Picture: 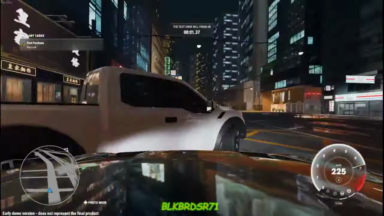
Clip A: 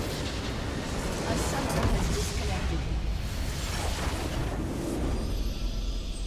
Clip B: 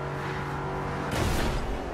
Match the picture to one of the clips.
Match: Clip B